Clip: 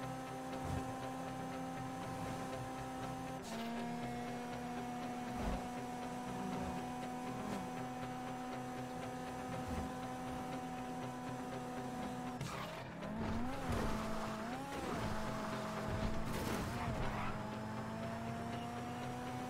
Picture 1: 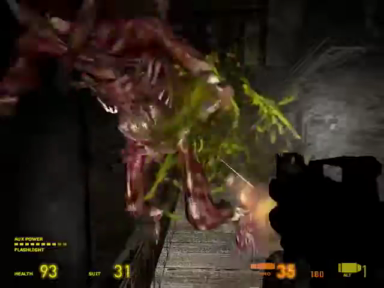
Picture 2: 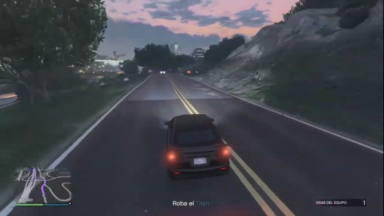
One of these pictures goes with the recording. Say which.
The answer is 2